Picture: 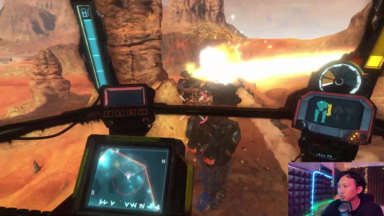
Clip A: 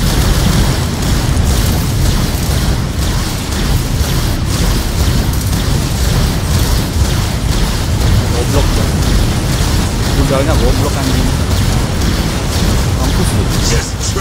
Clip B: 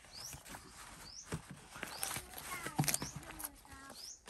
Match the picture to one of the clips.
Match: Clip A